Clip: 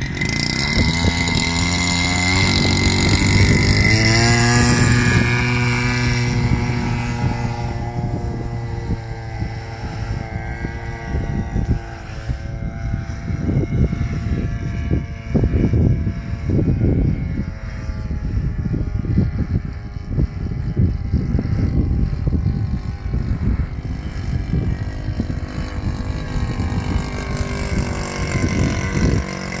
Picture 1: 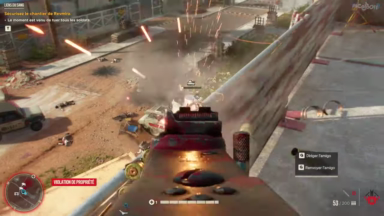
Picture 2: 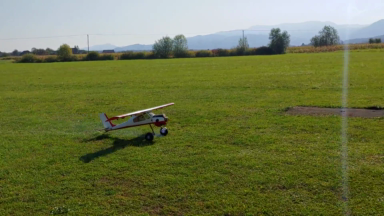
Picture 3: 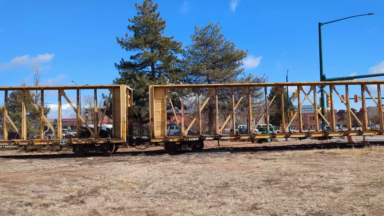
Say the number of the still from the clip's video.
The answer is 2